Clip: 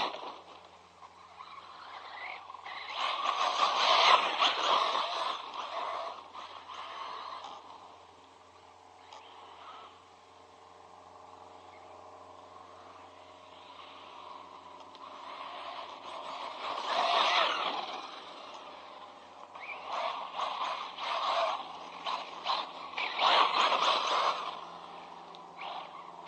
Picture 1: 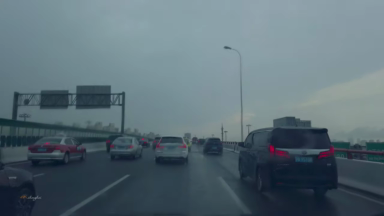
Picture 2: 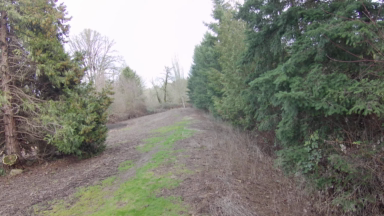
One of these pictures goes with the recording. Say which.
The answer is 2